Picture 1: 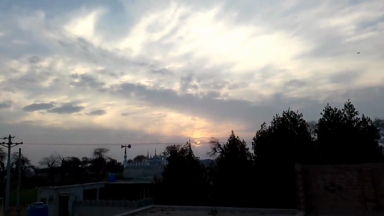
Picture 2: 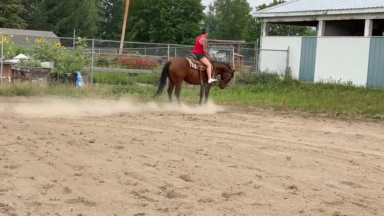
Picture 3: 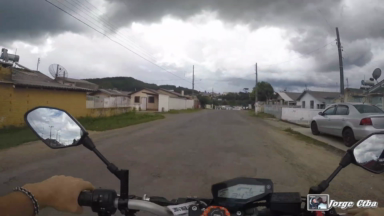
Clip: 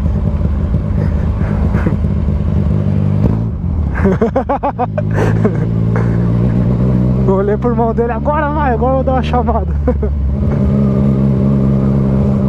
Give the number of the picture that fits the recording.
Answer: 3